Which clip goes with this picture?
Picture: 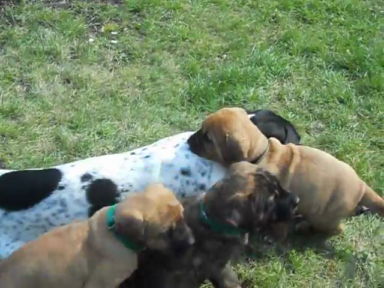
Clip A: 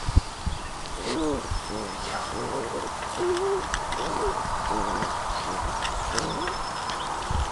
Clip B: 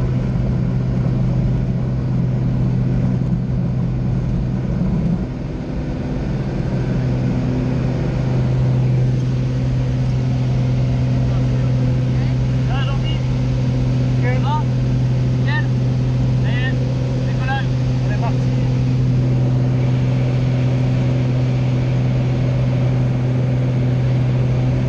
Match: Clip A